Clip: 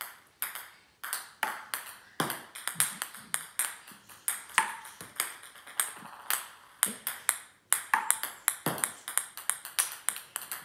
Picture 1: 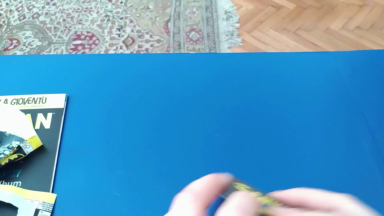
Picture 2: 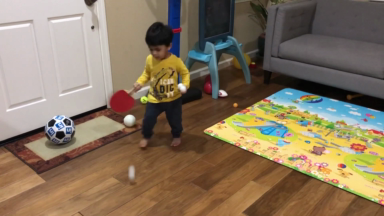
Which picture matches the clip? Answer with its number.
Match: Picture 2